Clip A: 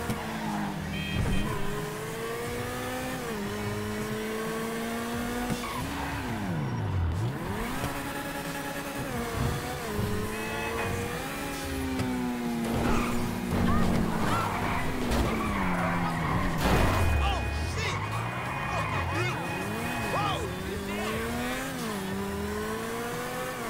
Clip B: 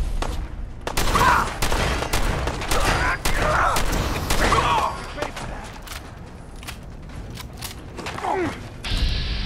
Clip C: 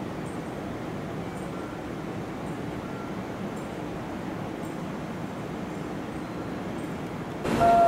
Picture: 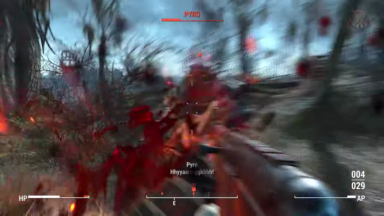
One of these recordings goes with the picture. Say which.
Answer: B